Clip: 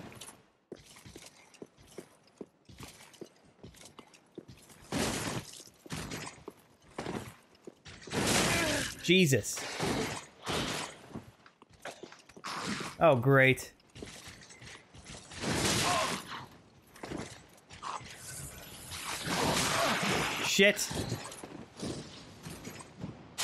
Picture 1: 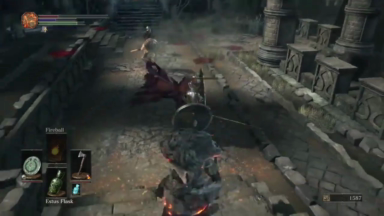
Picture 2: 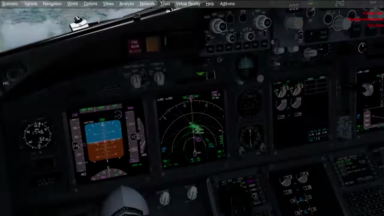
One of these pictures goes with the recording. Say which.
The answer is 1